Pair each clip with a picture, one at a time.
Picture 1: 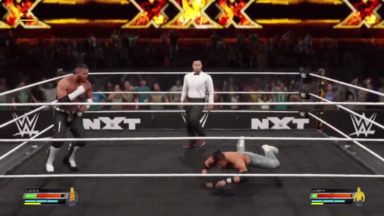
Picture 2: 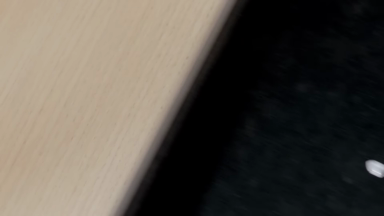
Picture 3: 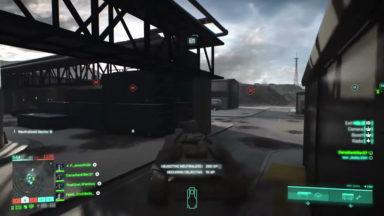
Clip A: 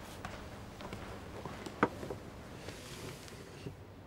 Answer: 2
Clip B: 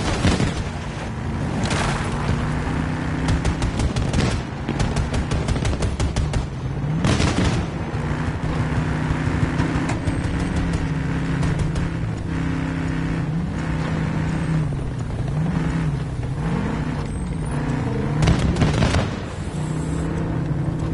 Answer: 3